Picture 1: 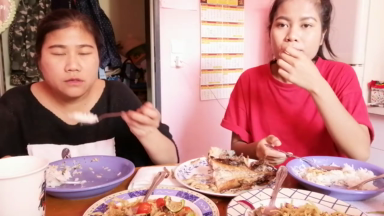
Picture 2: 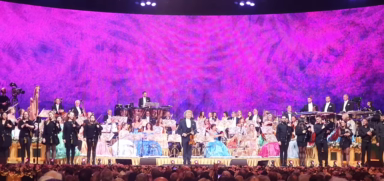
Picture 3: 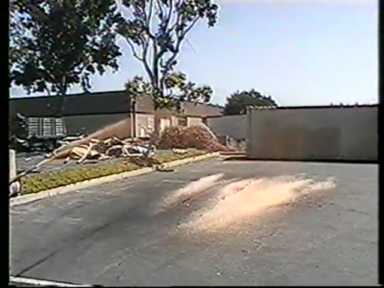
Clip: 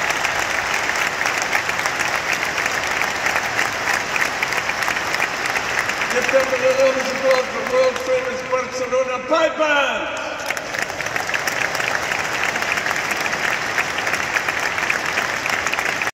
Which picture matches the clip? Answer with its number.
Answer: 2